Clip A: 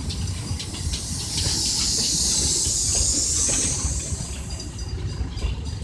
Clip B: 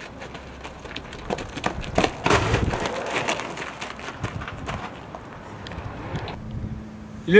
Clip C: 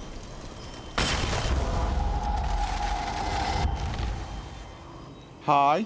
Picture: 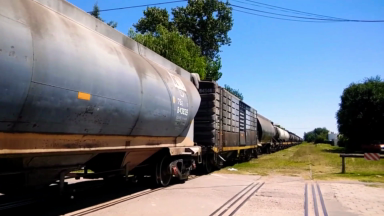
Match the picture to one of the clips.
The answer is A